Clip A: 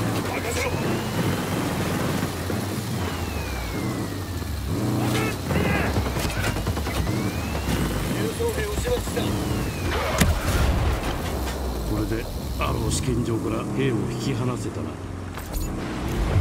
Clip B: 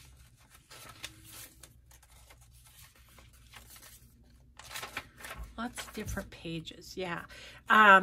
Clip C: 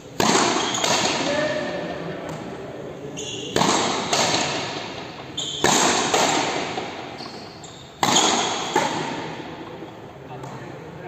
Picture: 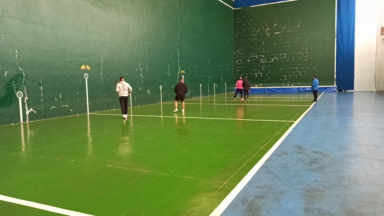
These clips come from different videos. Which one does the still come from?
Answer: C